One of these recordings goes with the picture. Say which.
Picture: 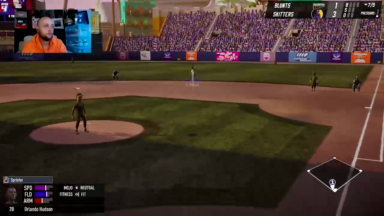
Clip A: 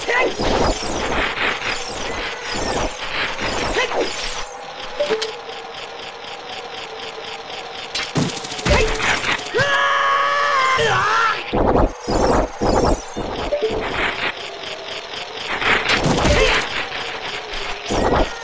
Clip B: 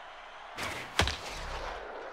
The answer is B